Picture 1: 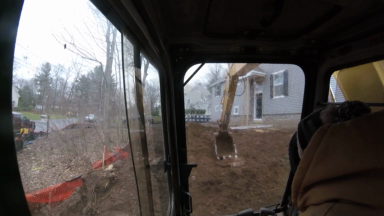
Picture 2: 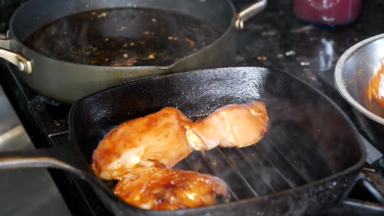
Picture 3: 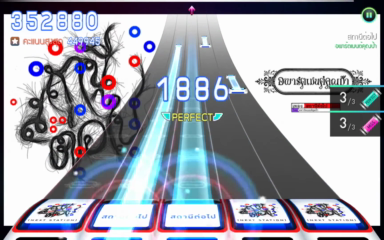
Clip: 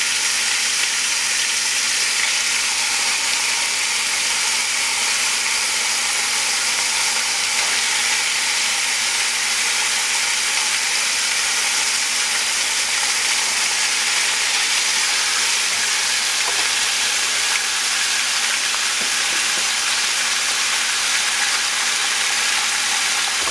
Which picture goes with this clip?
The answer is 2